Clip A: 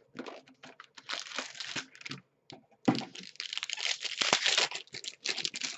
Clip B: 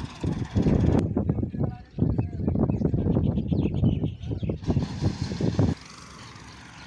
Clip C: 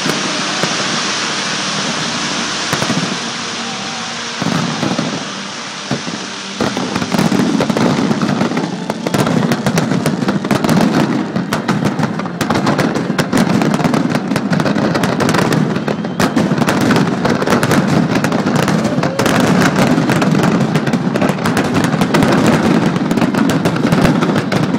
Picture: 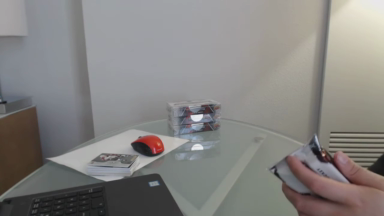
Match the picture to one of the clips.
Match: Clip A